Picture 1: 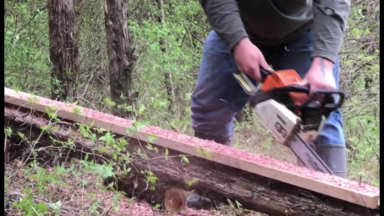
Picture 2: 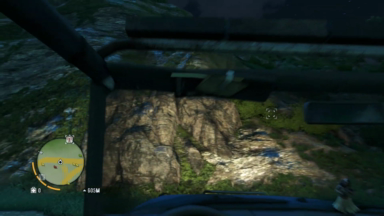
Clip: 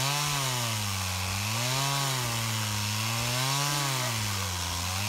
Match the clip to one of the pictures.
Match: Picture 1